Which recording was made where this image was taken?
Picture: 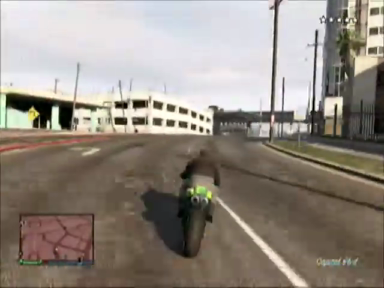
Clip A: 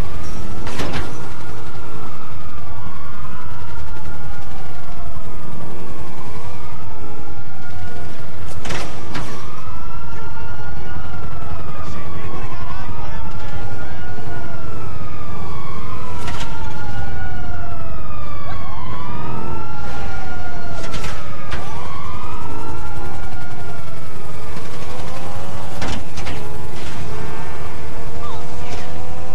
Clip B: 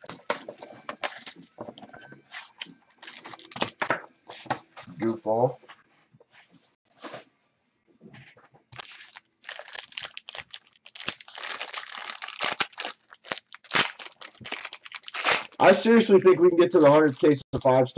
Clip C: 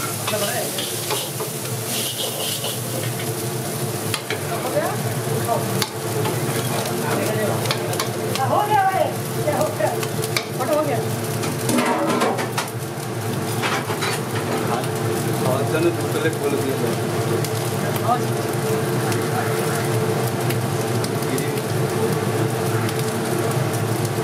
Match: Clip A